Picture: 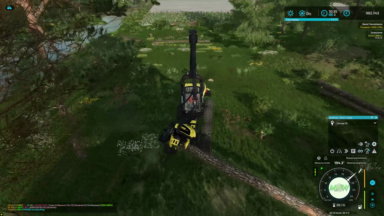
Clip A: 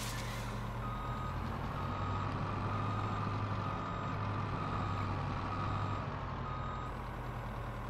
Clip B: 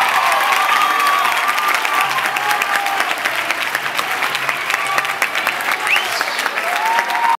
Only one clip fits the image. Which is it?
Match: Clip A